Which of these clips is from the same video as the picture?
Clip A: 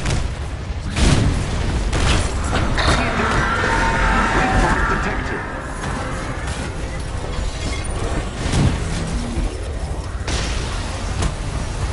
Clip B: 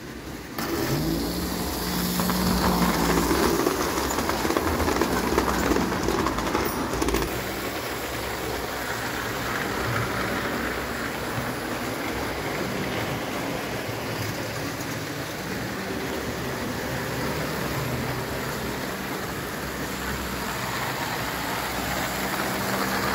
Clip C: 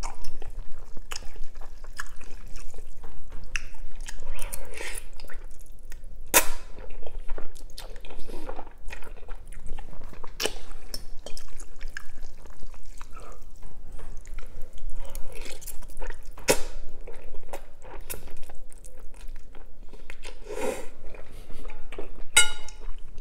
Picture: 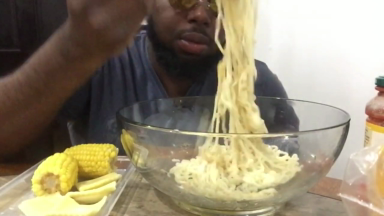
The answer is C